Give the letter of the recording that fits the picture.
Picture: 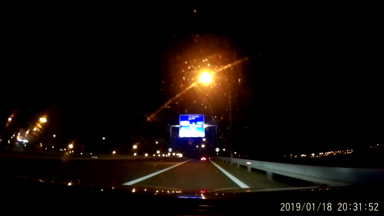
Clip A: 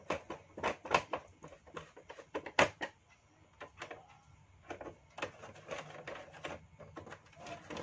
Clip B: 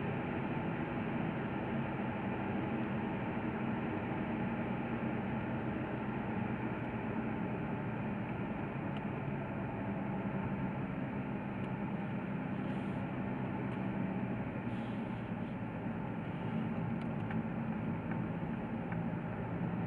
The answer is B